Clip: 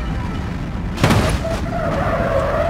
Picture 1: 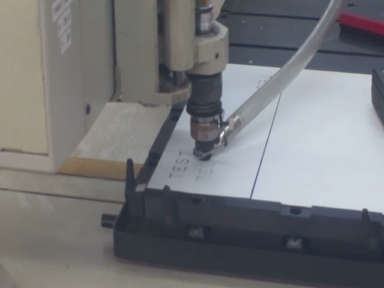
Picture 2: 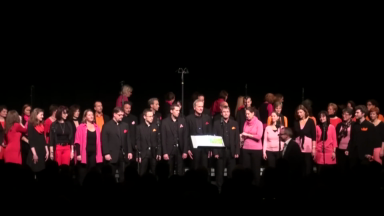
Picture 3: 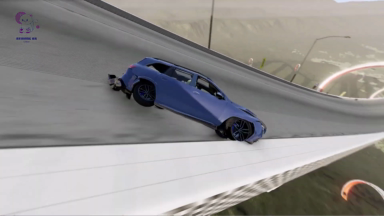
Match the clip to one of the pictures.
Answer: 3